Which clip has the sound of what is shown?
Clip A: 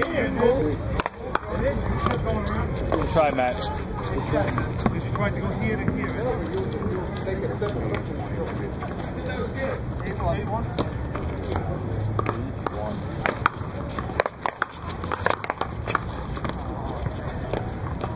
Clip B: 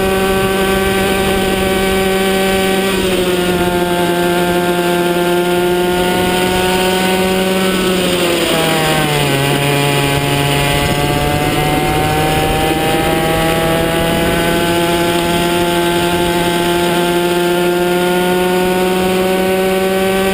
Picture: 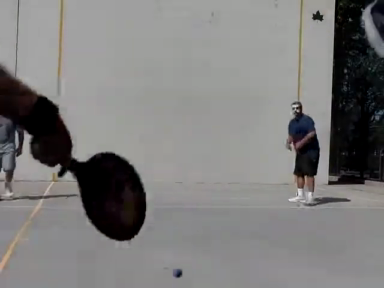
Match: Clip A